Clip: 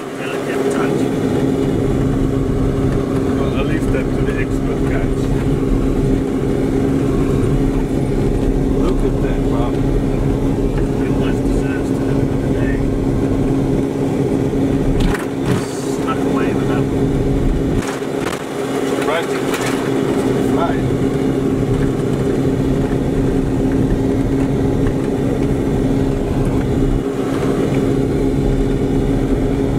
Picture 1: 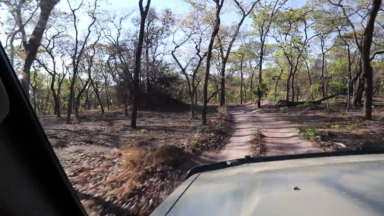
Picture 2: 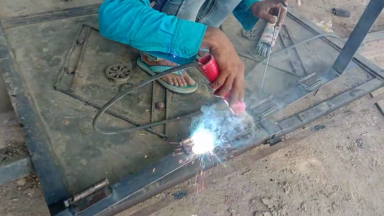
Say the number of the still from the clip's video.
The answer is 1